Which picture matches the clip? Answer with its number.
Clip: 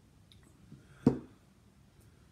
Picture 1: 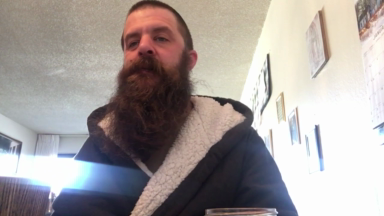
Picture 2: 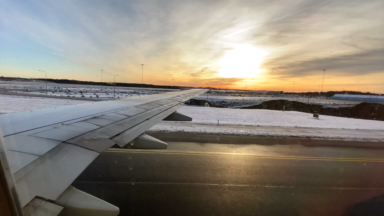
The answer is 1